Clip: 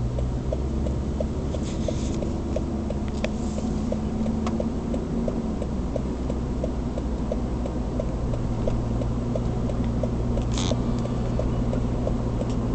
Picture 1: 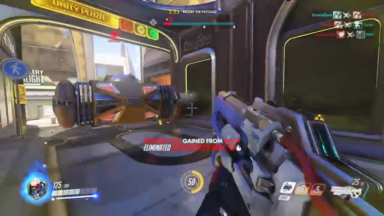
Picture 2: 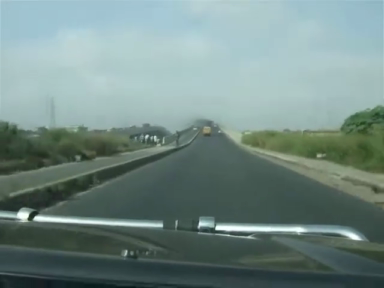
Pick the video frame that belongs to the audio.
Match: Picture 2